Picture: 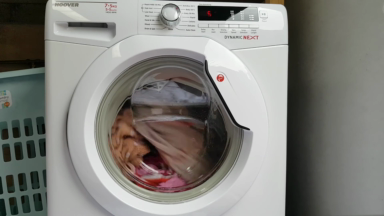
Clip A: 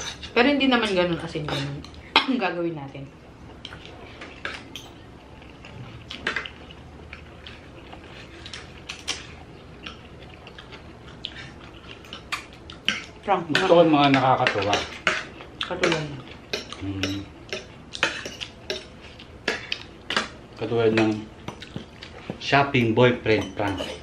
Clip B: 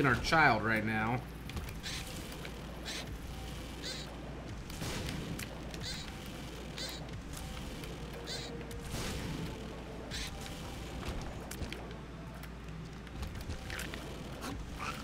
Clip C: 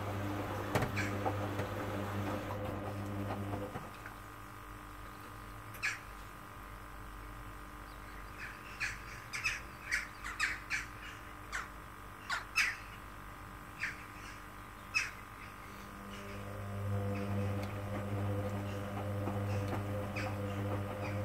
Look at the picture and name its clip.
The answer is C